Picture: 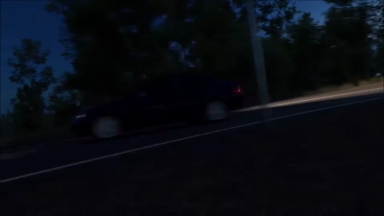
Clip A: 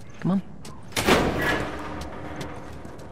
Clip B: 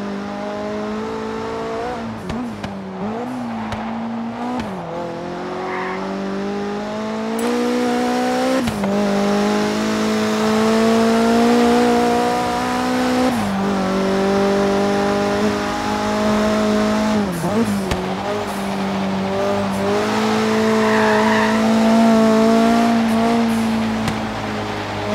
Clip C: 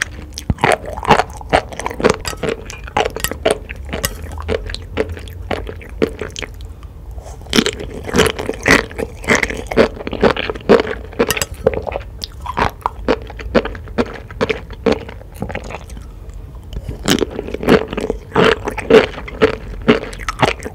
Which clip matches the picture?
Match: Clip B